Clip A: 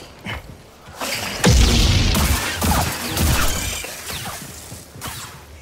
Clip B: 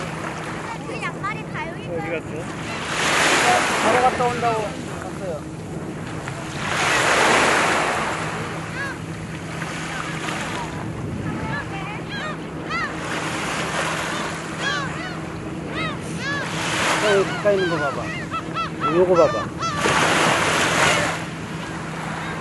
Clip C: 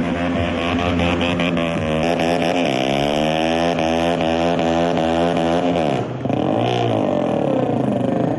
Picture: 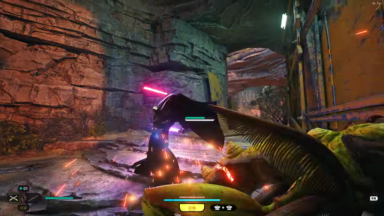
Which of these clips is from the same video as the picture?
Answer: A